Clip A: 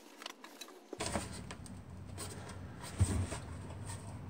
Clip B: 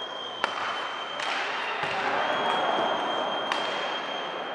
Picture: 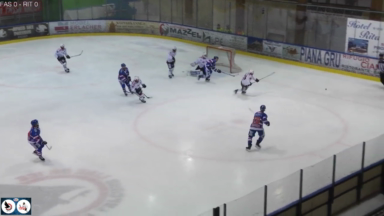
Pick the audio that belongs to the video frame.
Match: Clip B